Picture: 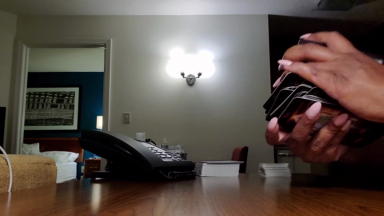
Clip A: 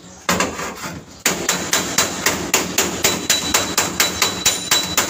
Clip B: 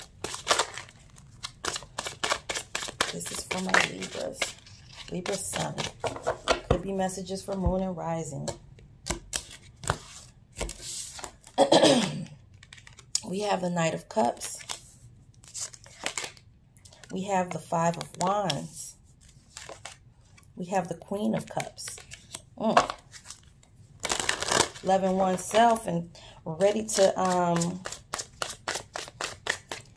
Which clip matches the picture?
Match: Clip B